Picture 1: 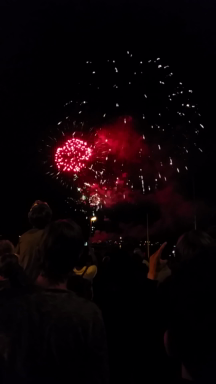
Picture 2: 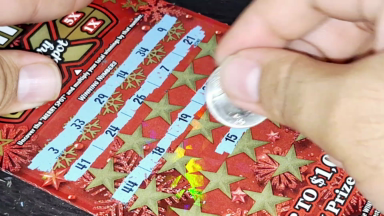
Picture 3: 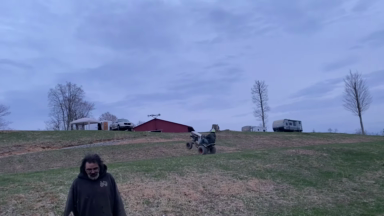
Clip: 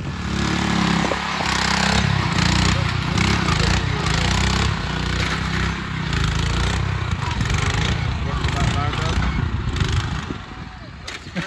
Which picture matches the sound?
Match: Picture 3